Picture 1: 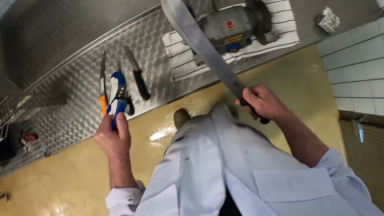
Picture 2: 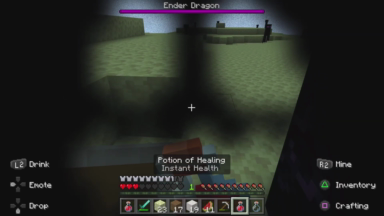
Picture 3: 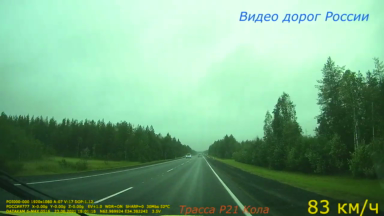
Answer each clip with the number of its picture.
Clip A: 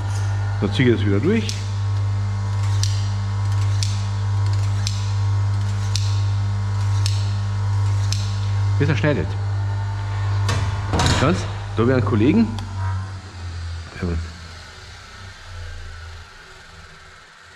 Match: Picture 1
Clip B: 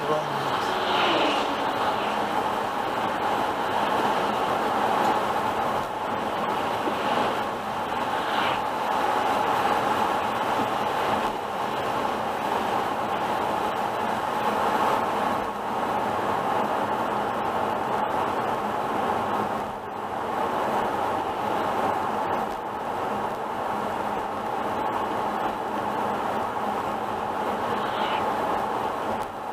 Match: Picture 3